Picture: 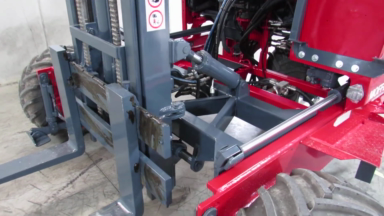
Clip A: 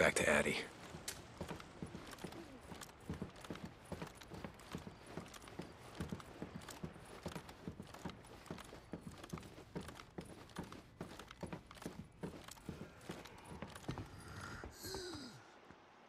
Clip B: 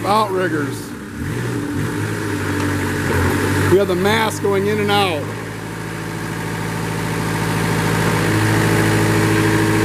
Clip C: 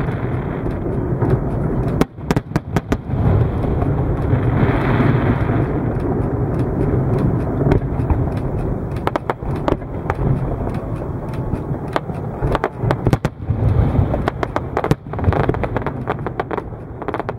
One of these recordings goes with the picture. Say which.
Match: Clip B